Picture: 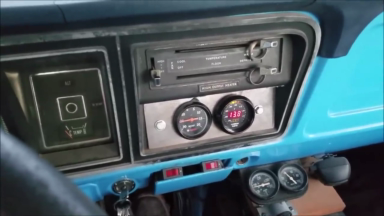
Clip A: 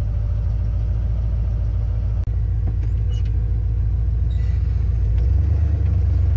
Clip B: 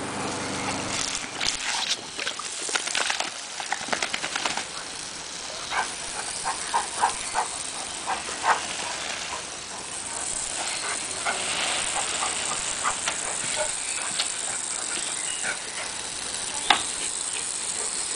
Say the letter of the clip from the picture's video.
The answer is A